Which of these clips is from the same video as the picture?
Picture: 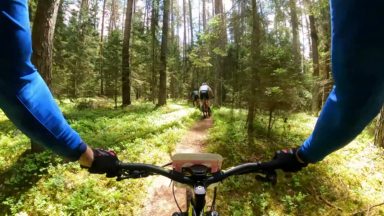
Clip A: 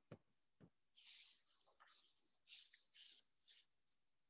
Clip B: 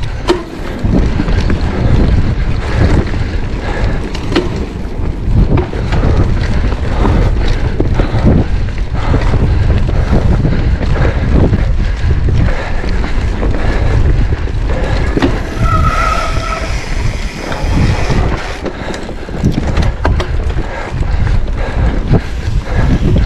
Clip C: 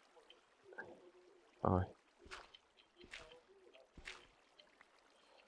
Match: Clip B